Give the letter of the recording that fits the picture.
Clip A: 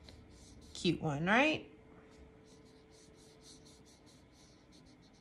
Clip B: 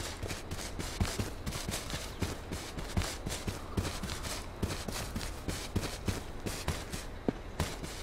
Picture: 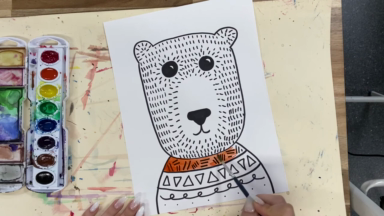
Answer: A